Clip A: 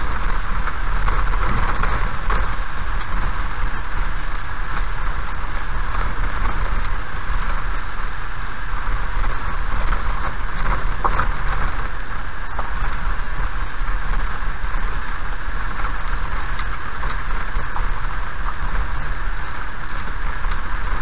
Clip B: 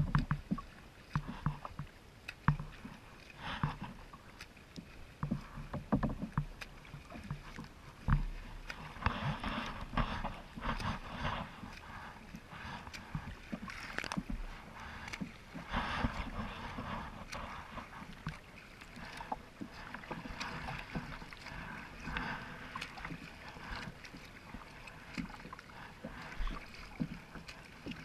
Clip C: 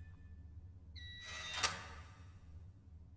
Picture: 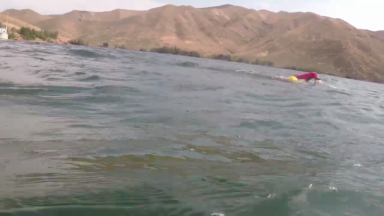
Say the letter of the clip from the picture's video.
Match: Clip B